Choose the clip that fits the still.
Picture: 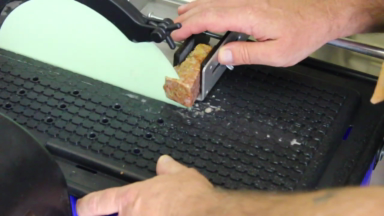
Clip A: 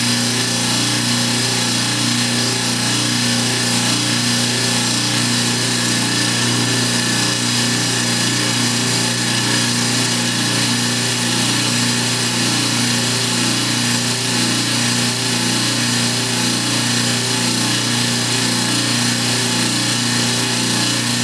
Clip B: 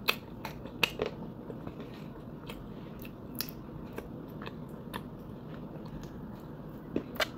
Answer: A